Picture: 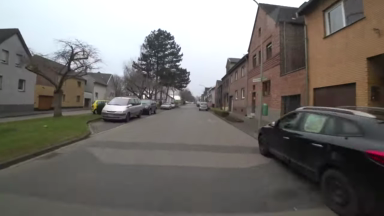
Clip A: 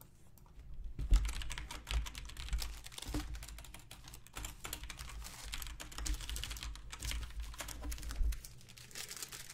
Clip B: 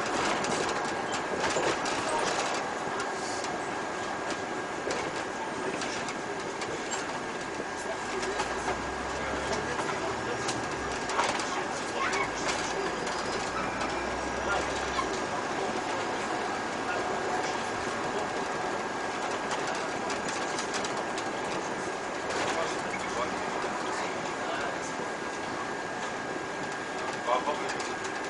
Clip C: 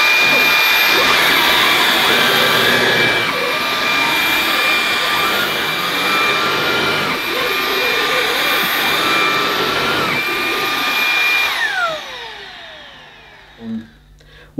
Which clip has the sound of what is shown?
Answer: B